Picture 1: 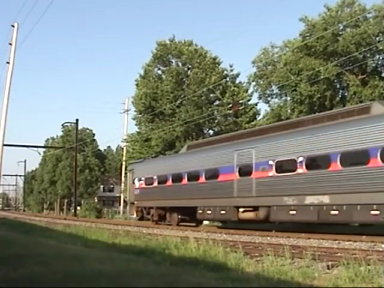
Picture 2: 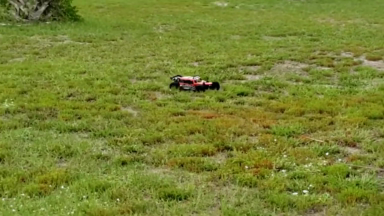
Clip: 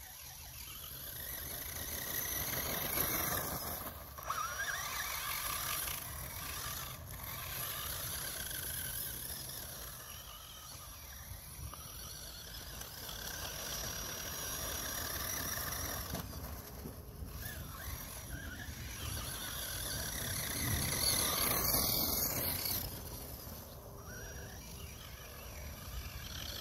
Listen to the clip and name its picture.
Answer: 2